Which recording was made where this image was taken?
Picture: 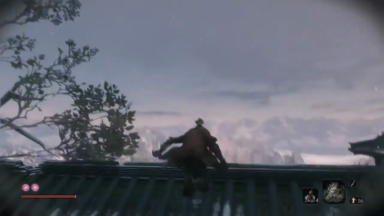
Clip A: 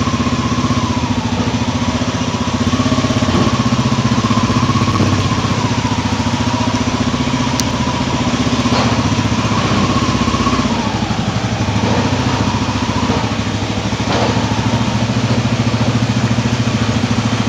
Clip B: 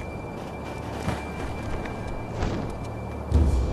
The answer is B